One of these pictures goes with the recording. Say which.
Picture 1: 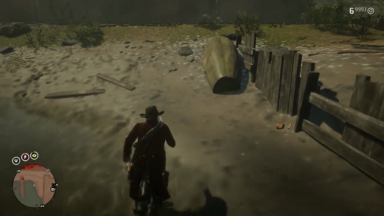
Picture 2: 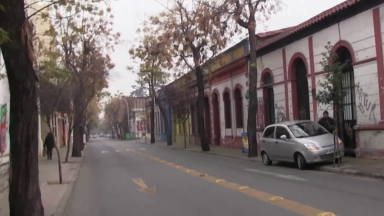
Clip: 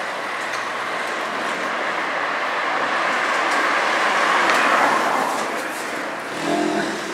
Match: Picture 2